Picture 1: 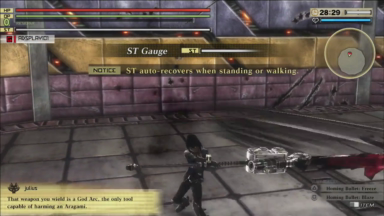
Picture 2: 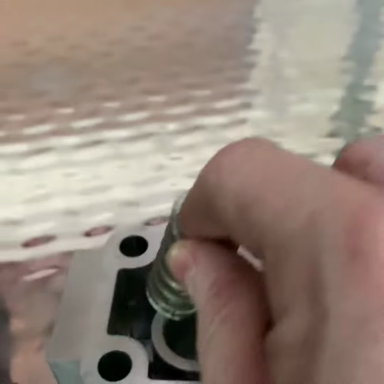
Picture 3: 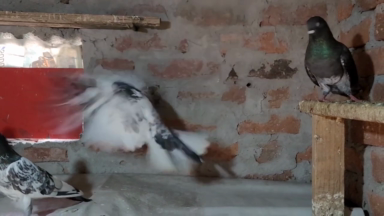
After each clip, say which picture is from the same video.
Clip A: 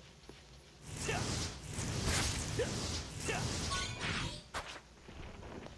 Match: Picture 1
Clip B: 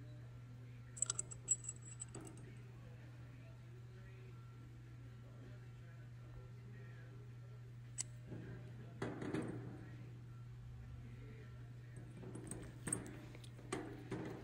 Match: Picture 2